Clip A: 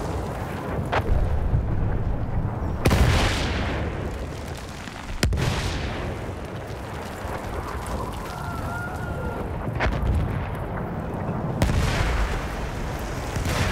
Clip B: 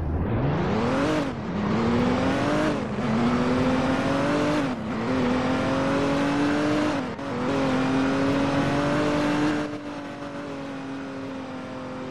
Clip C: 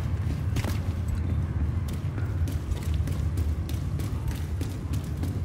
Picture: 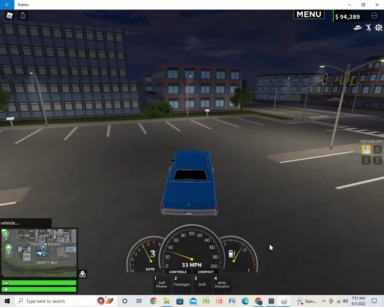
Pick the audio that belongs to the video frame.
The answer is B